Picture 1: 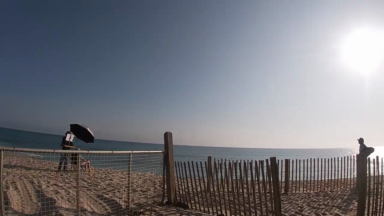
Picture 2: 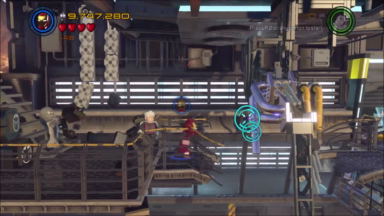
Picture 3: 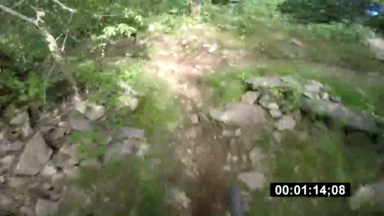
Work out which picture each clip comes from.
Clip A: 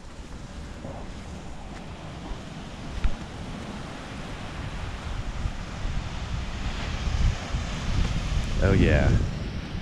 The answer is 1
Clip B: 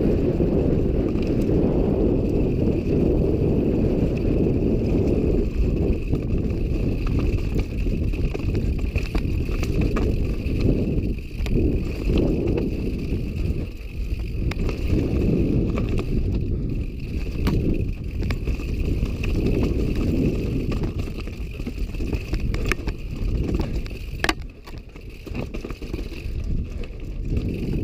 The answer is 3